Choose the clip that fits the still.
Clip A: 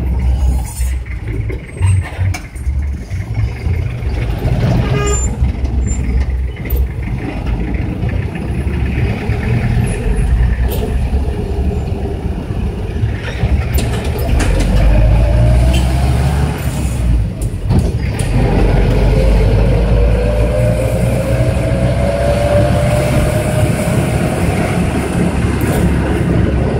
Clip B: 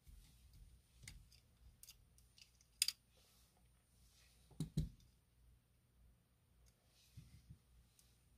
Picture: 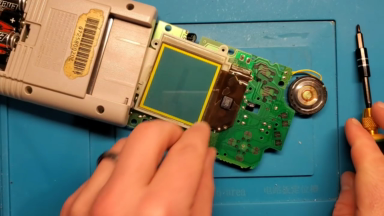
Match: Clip B